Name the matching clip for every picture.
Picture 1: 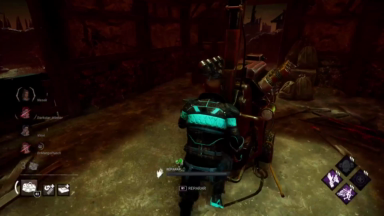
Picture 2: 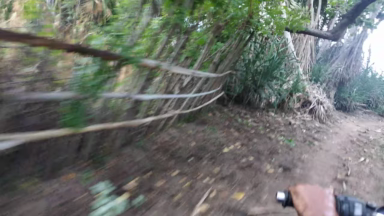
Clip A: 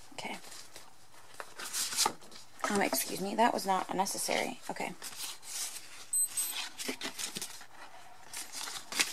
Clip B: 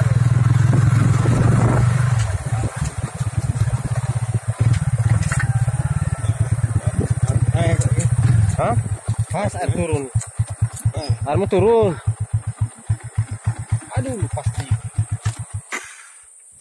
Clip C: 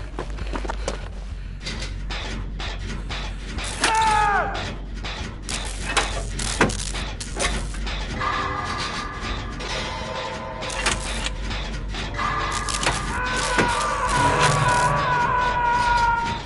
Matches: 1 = C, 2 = B